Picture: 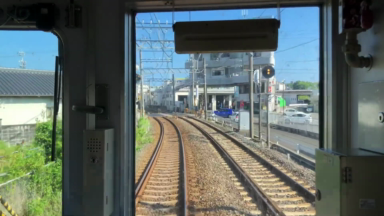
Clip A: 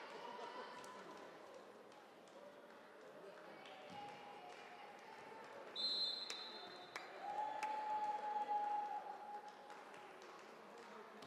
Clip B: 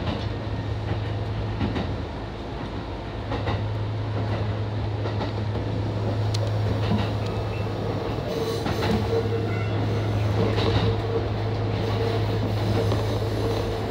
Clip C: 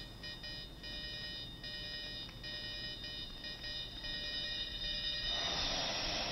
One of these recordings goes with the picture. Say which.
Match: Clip B